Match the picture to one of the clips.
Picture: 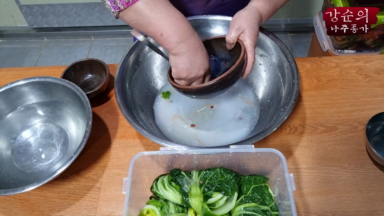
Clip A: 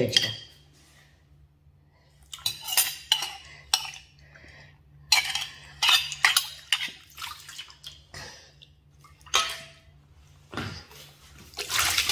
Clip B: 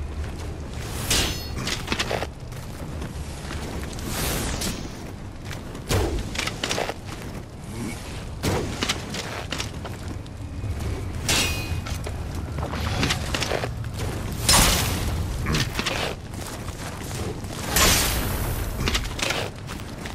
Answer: A